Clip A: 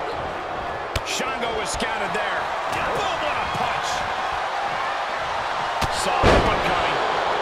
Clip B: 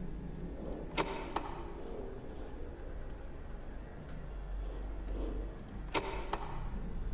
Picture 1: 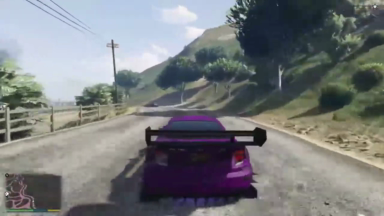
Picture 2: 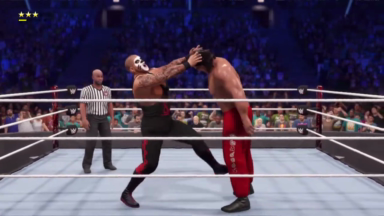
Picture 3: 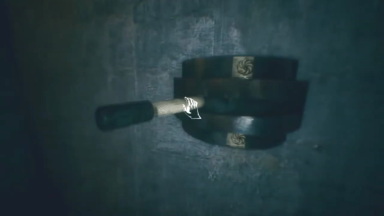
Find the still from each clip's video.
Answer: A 2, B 3